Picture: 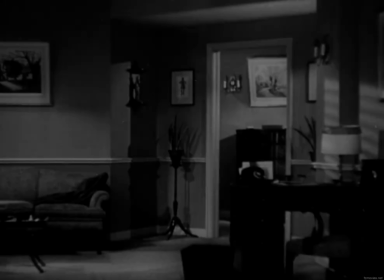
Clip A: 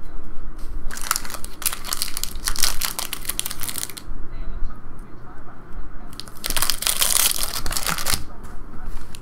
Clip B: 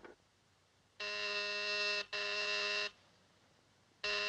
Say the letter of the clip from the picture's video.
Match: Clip B